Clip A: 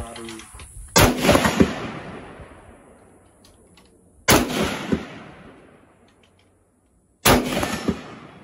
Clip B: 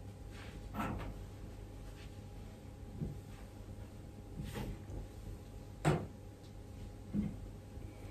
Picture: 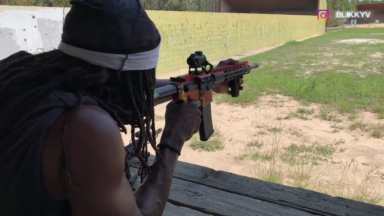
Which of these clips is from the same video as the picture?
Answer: A